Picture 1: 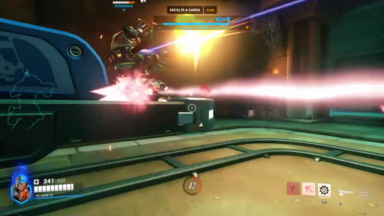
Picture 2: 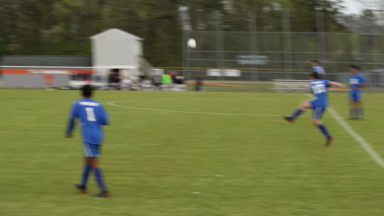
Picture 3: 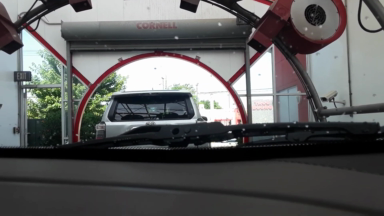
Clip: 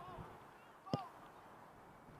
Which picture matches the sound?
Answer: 2